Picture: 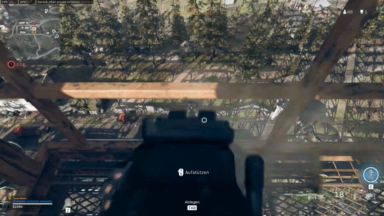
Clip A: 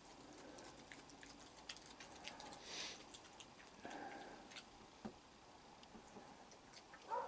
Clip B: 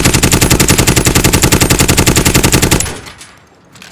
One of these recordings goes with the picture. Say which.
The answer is B